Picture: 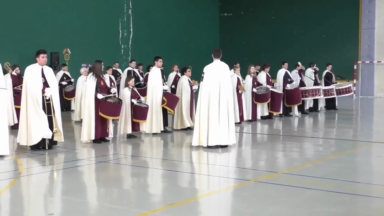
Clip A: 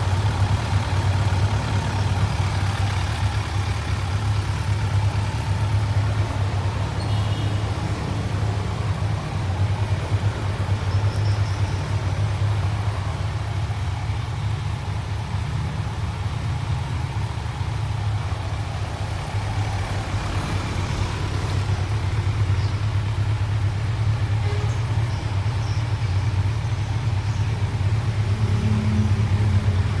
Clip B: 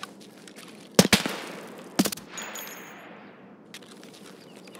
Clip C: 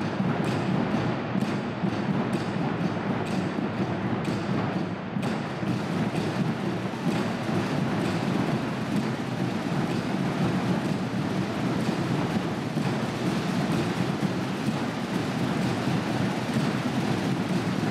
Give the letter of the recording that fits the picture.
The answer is C